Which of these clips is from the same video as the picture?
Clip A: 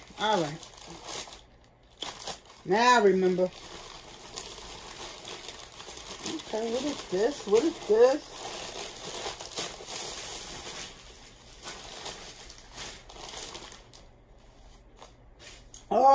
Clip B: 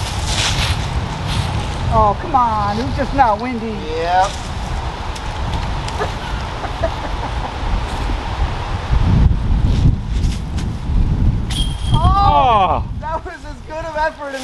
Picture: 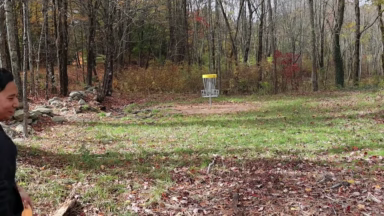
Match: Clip B